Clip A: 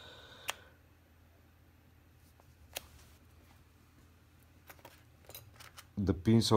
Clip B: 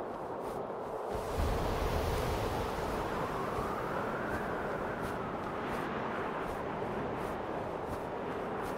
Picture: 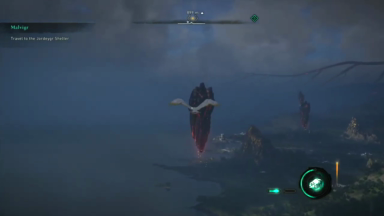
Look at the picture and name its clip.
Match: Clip B